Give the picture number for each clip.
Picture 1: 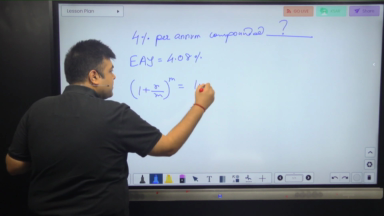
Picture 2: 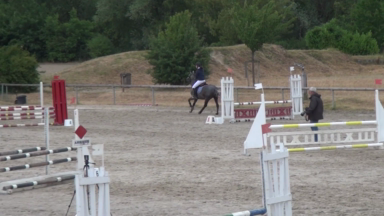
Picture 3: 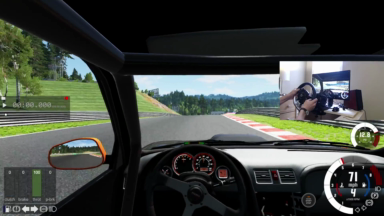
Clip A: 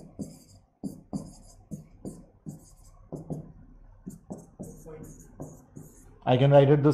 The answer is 1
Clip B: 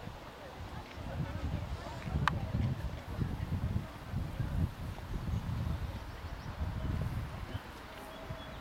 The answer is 2